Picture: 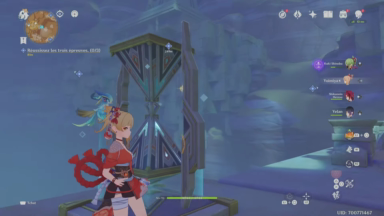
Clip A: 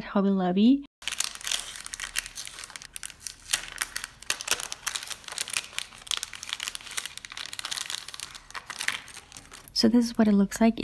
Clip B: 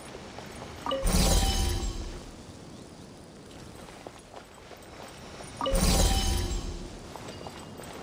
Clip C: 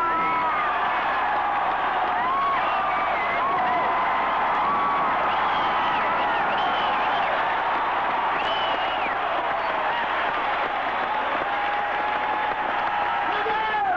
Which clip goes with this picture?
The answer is B